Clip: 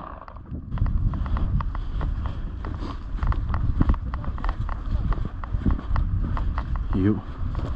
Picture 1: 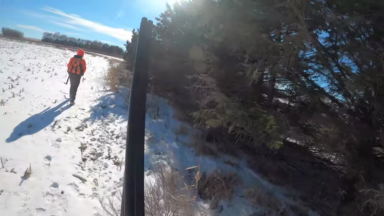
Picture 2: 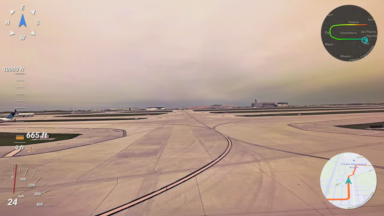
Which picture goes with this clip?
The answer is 1